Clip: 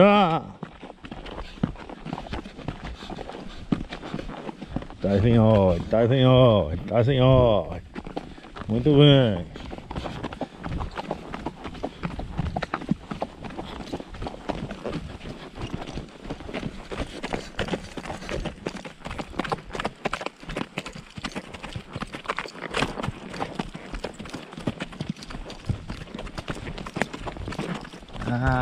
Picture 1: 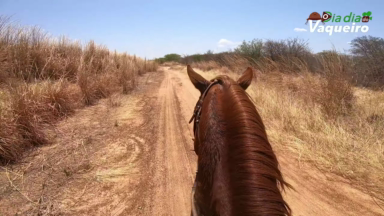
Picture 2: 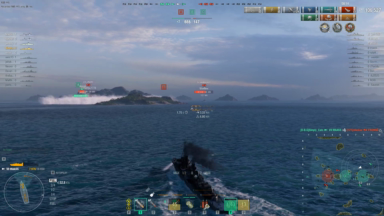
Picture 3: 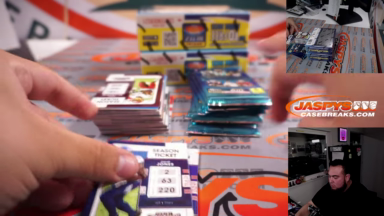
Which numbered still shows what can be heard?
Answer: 1